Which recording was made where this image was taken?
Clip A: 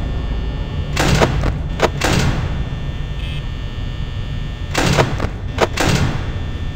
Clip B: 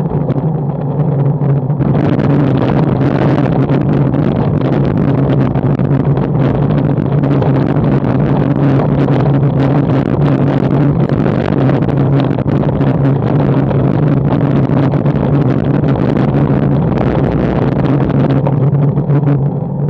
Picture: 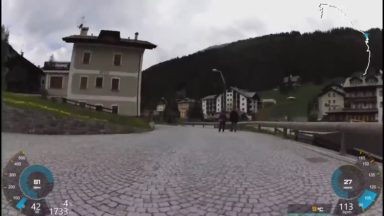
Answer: B